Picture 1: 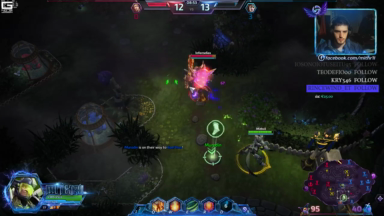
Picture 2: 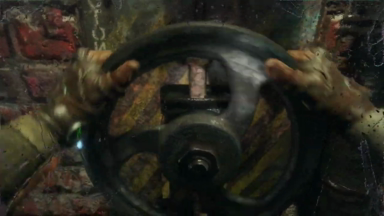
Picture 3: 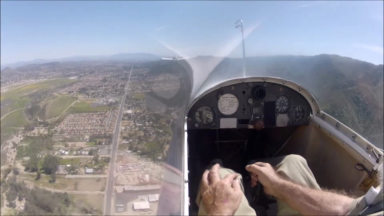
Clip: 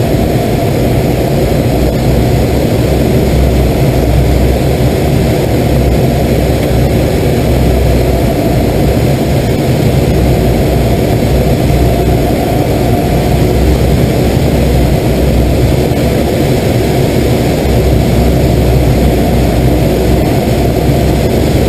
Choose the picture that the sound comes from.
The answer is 3